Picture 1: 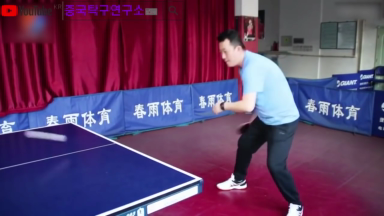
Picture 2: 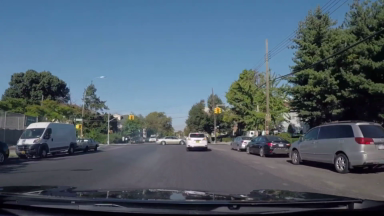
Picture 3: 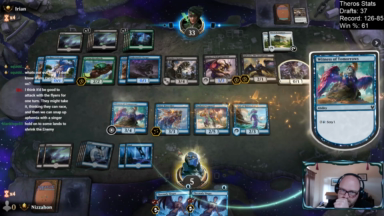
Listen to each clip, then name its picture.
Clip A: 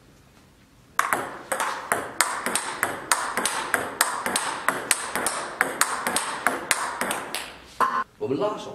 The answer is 1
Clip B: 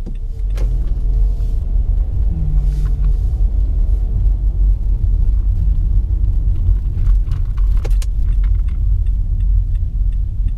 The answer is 2